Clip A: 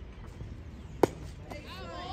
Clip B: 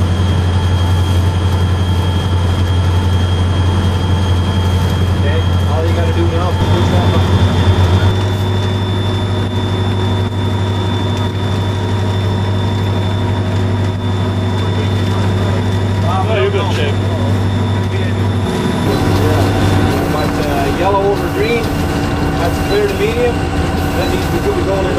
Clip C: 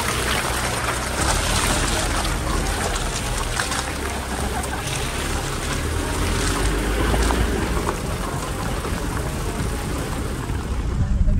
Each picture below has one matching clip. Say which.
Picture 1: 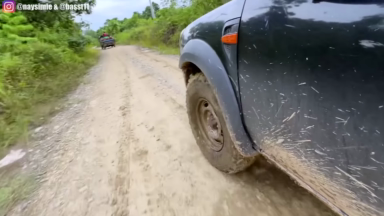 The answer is C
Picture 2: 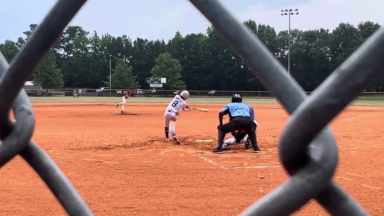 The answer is A